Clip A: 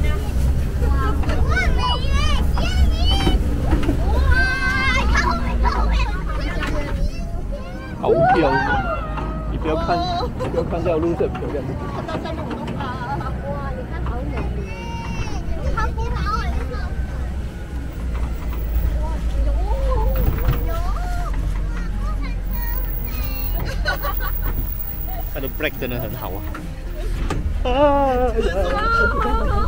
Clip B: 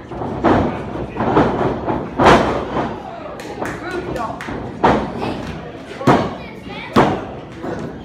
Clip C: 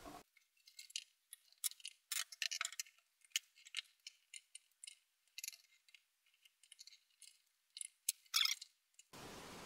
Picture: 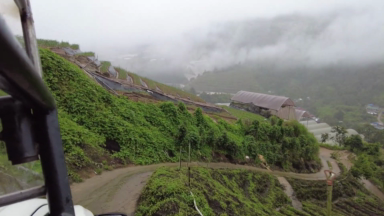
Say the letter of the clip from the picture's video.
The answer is A